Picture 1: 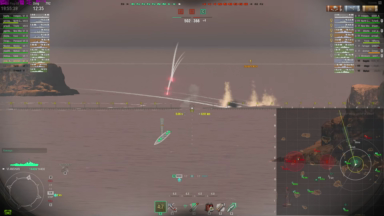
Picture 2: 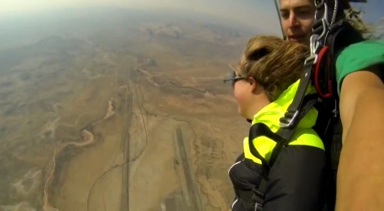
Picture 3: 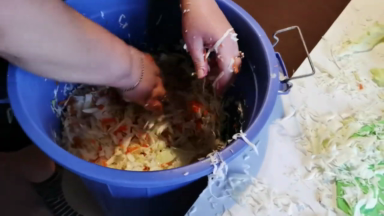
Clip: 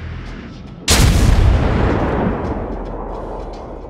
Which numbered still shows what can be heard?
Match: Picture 1